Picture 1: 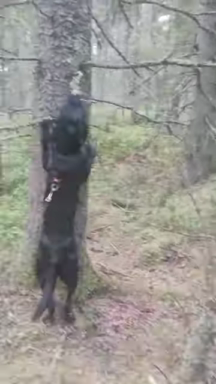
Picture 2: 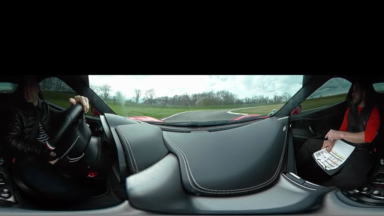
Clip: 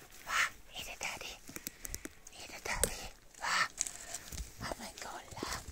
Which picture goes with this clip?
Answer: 1